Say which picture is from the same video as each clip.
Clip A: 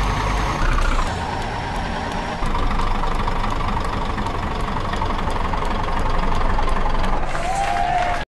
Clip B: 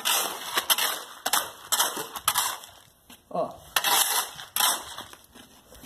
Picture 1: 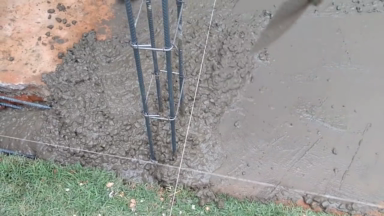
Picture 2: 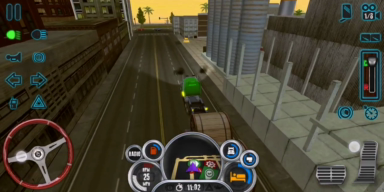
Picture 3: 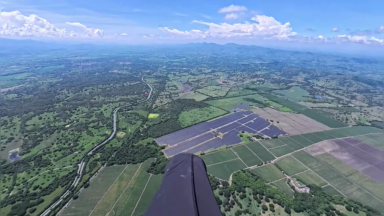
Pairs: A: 2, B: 1